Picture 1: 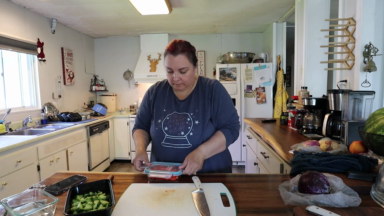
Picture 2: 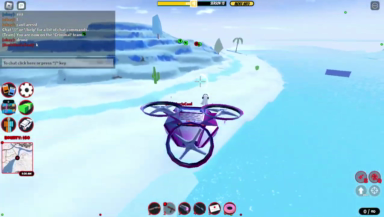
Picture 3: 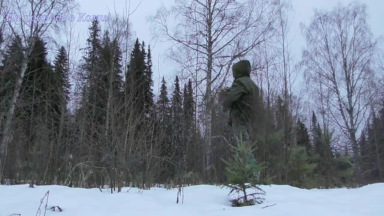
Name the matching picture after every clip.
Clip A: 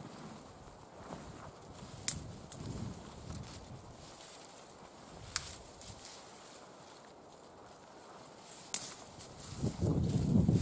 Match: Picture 3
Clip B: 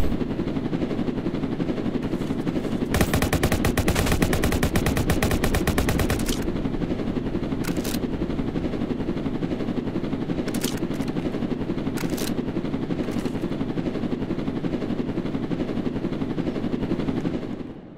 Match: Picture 2